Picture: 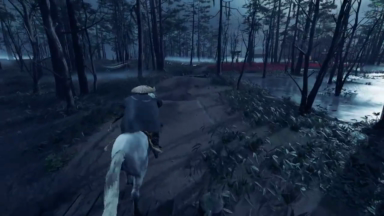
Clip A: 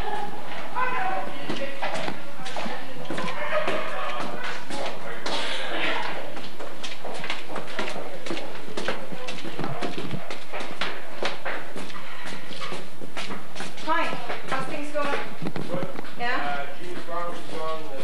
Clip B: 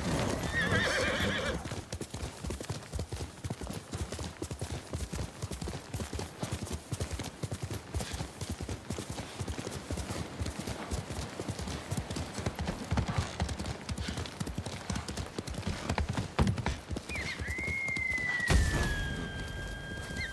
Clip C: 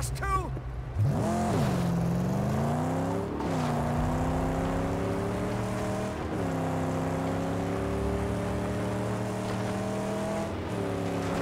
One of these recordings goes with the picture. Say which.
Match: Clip B